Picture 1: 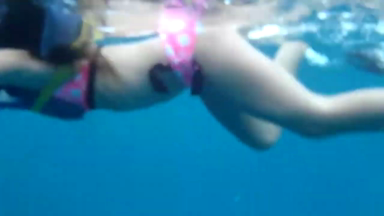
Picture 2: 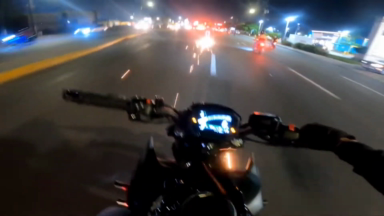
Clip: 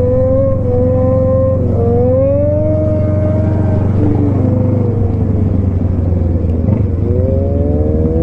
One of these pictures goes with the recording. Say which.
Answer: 2